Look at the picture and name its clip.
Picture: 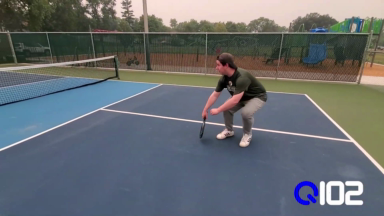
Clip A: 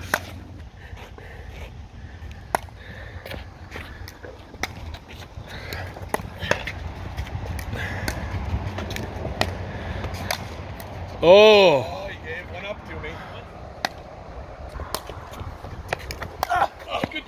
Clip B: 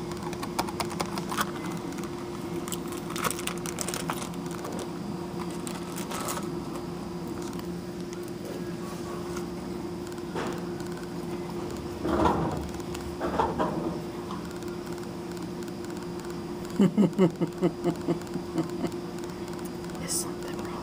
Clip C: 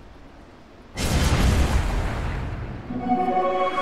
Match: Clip A